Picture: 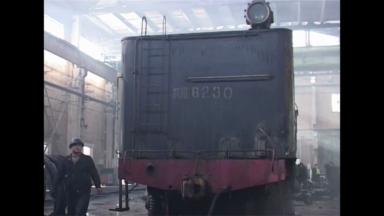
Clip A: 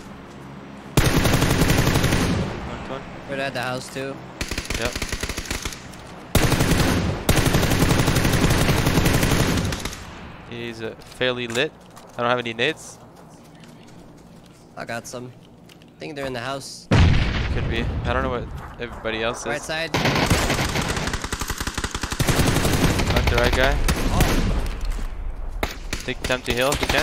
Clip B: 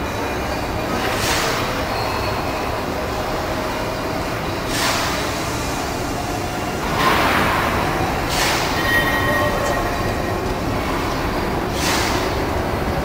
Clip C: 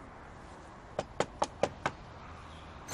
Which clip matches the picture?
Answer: B